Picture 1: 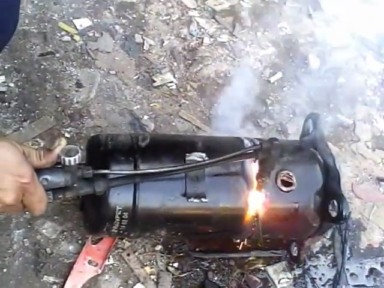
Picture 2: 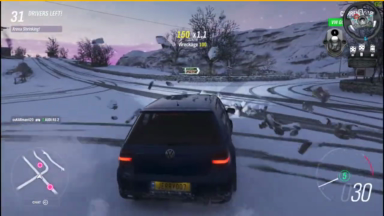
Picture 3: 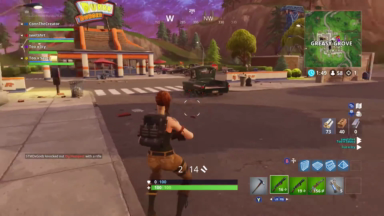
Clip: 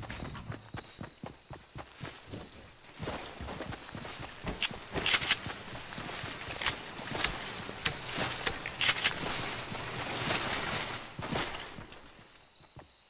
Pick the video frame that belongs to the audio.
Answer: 3